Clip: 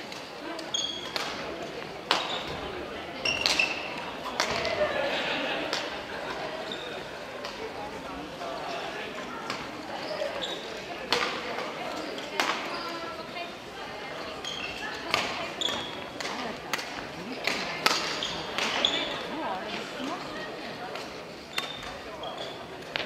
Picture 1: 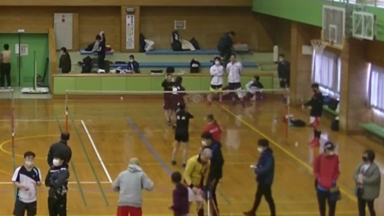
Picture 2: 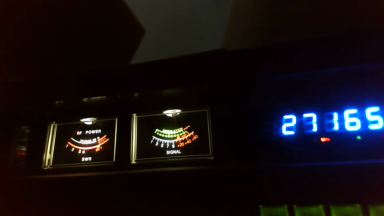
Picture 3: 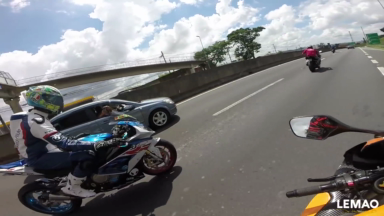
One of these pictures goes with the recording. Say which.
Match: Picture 1